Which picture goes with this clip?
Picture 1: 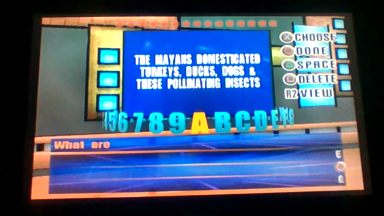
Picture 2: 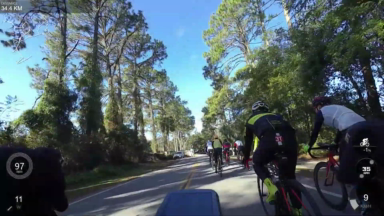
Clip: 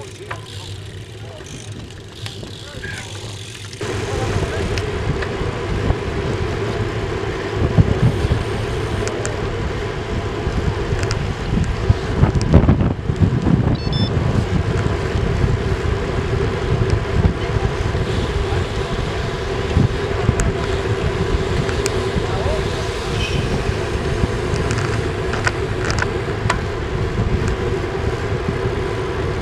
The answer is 2